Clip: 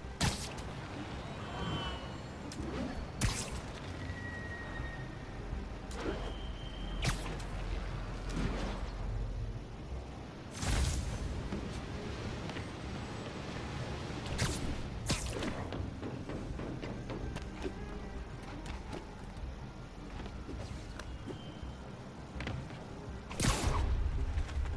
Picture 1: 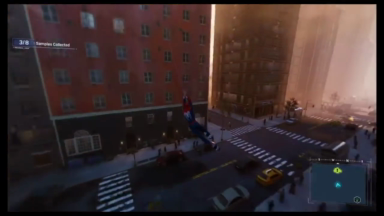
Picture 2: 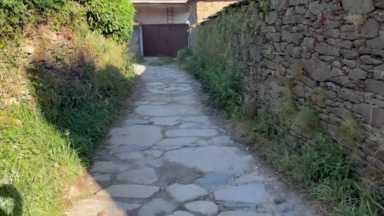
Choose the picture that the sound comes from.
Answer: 1